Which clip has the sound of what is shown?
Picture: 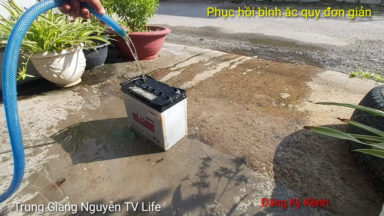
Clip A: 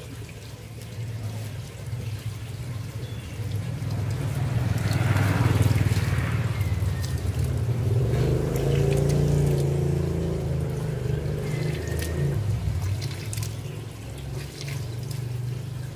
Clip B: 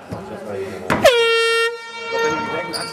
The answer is A